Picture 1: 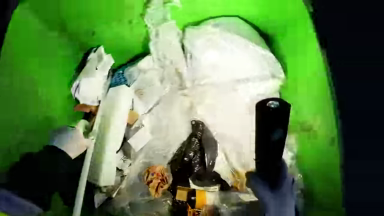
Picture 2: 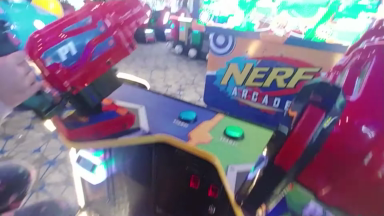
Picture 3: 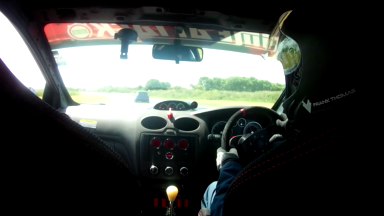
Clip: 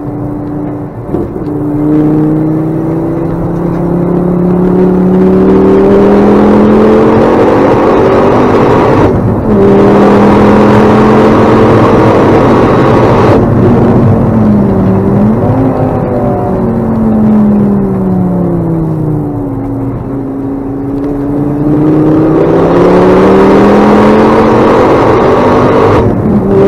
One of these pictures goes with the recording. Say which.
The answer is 3